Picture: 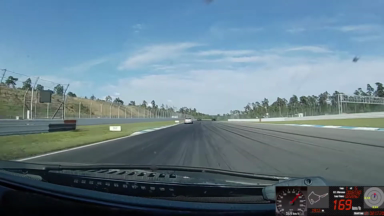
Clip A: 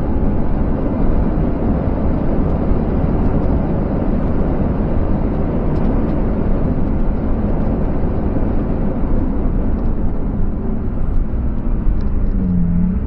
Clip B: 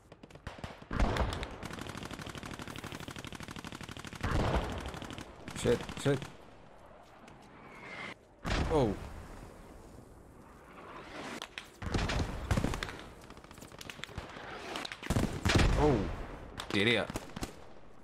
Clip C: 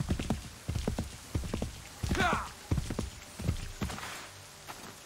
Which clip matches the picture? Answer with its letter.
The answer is A